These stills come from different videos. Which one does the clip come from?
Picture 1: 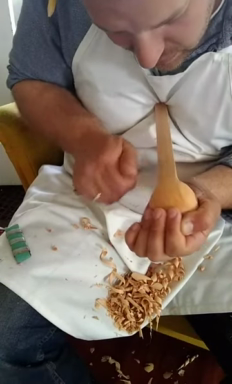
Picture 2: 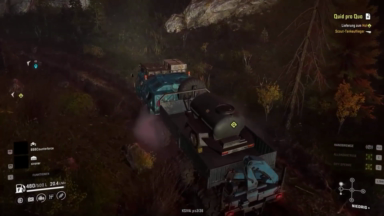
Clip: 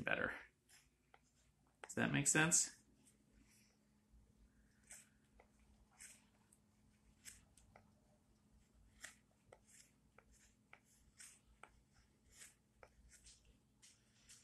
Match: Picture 1